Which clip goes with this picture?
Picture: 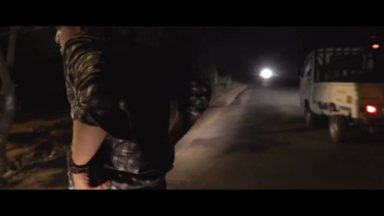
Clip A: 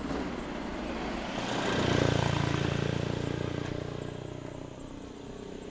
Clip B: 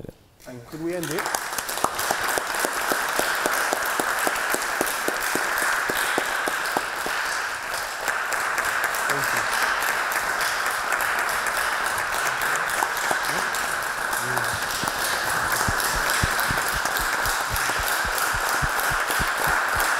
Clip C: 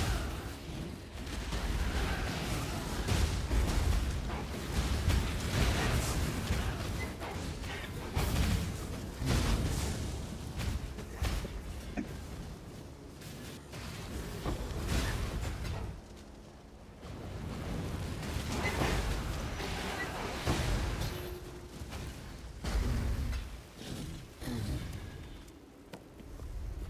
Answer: A